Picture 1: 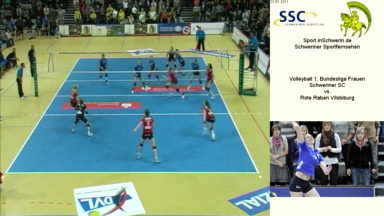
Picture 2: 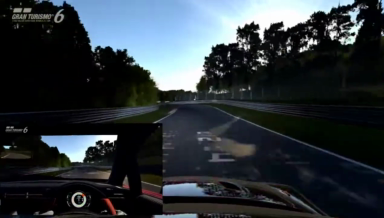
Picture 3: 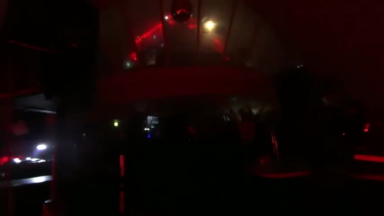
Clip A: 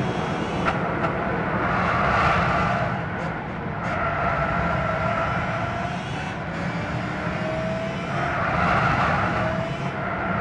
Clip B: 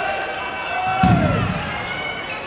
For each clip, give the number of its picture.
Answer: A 2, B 1